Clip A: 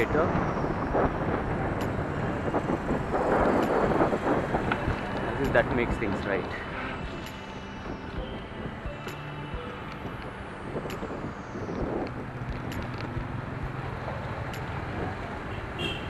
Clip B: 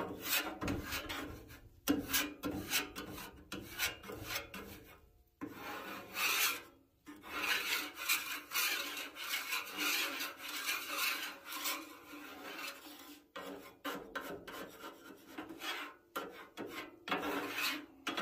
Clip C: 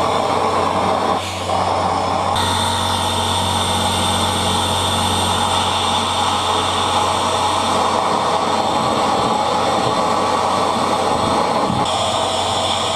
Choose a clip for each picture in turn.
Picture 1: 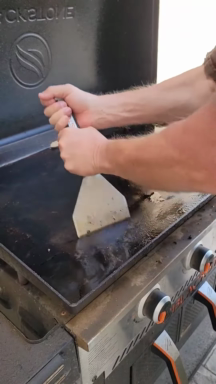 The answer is B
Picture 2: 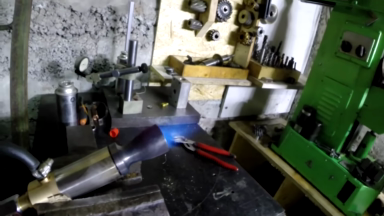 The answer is C